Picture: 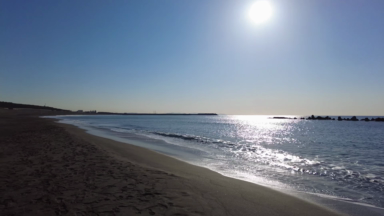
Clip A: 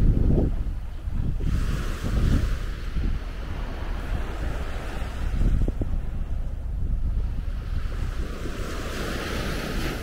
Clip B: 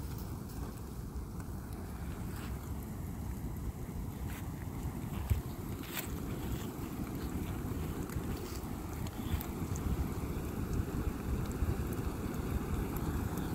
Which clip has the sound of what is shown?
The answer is A